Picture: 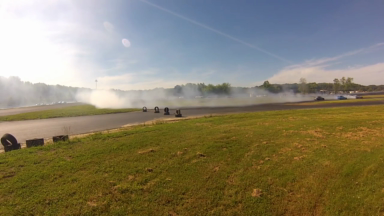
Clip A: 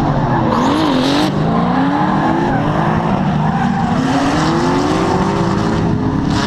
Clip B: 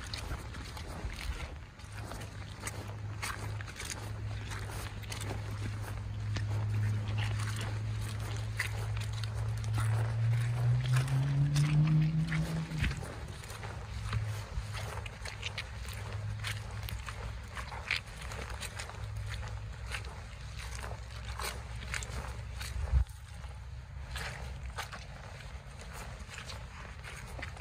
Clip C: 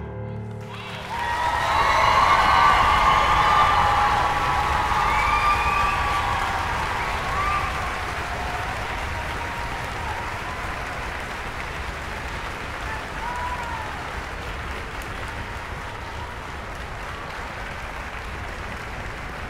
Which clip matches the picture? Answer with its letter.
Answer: A